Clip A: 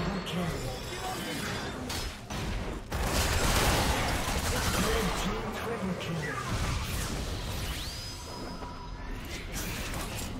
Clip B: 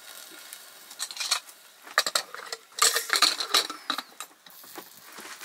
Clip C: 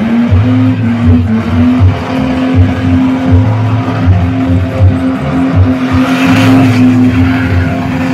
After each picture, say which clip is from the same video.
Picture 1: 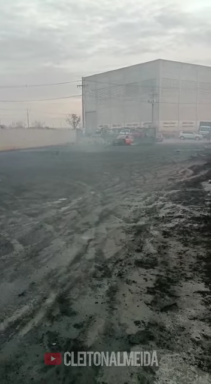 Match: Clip C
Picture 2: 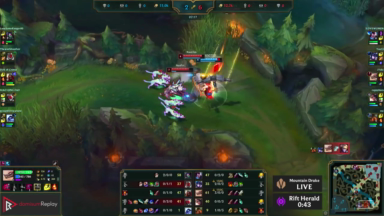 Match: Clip A